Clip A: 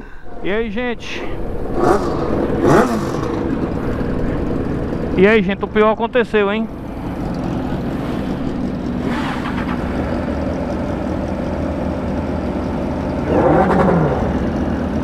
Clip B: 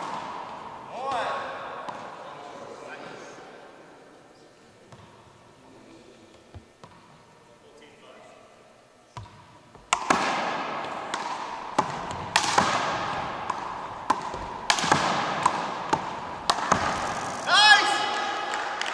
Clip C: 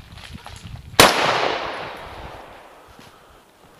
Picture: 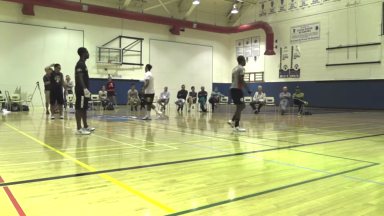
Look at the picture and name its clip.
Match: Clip B